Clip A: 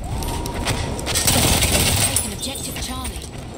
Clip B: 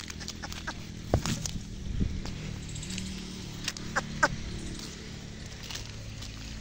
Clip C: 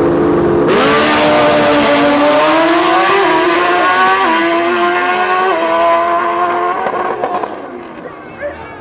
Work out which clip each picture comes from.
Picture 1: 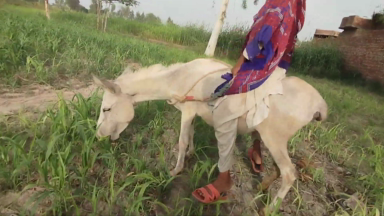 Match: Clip B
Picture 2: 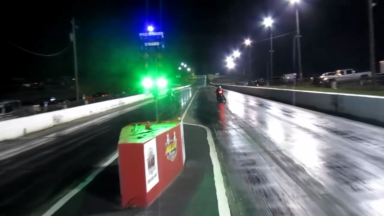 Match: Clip C